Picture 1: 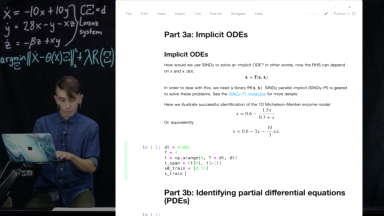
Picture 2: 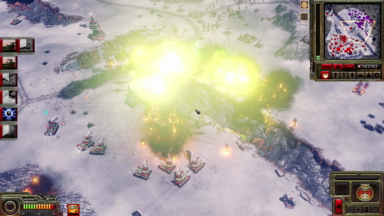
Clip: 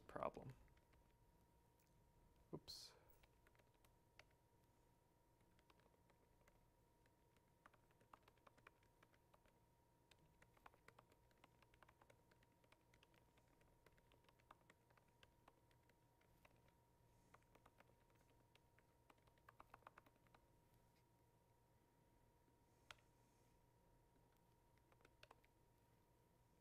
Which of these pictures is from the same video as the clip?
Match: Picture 1